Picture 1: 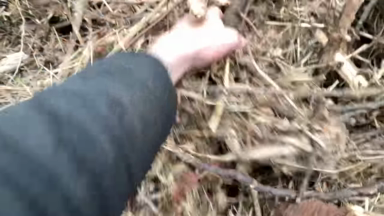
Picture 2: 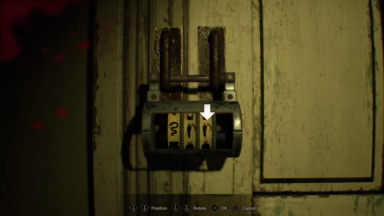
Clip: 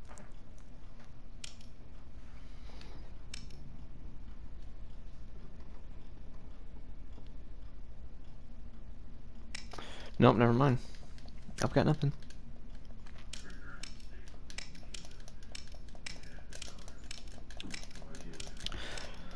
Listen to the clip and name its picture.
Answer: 2